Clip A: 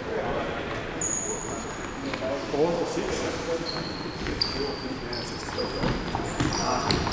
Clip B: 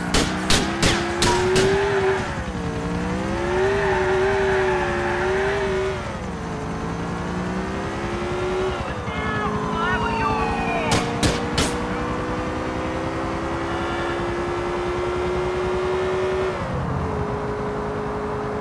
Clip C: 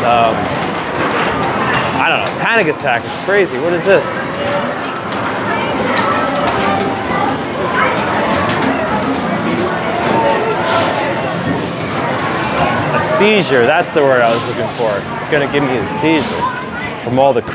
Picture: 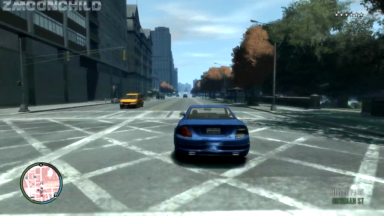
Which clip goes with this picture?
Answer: B